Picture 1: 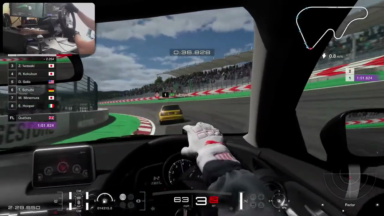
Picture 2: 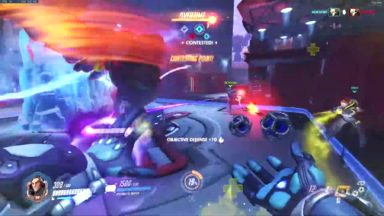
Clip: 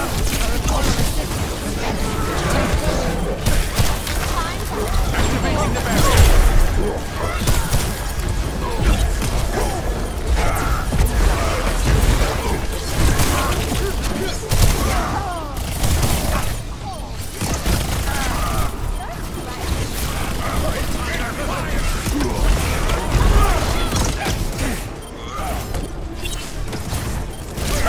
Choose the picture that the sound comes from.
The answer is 2